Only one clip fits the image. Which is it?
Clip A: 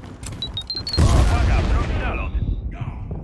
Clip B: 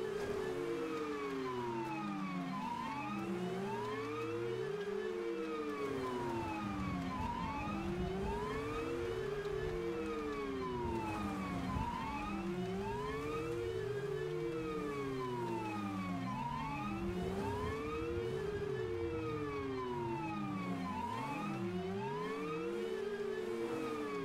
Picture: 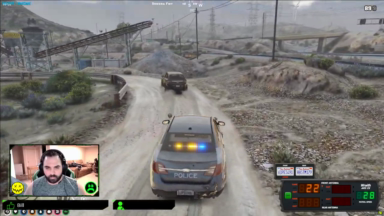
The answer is B